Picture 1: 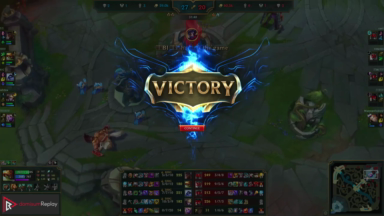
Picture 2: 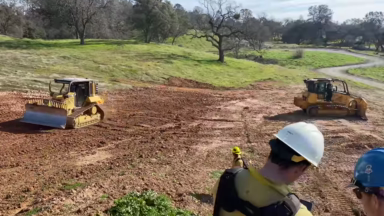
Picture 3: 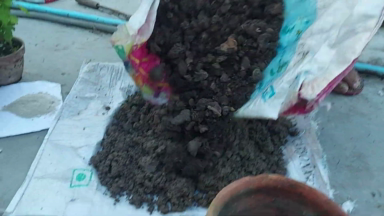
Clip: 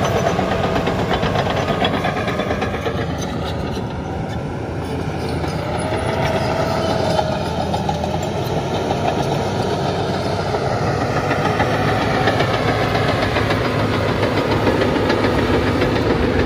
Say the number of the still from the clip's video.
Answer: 2